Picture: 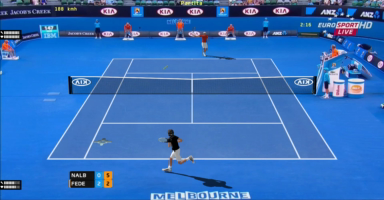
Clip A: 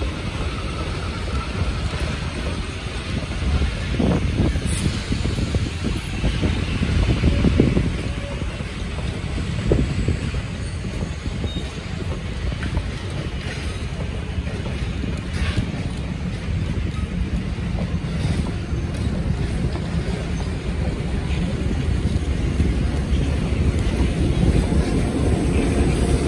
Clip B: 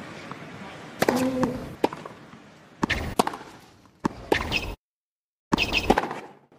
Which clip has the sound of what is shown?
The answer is B